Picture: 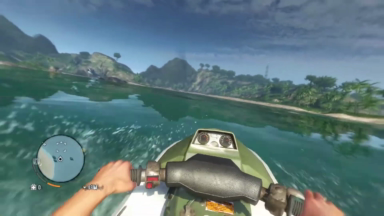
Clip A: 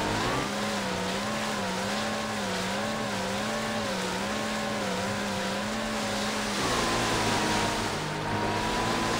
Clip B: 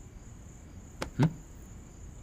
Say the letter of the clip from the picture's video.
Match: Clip A